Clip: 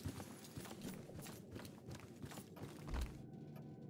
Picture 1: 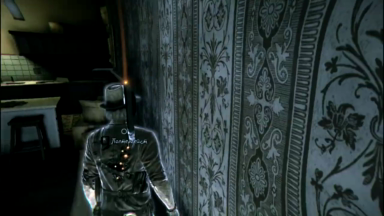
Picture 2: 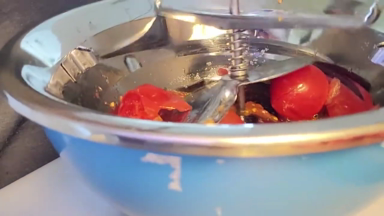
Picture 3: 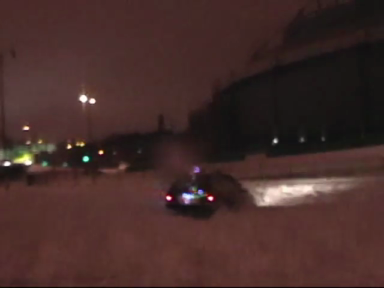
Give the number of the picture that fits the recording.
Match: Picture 1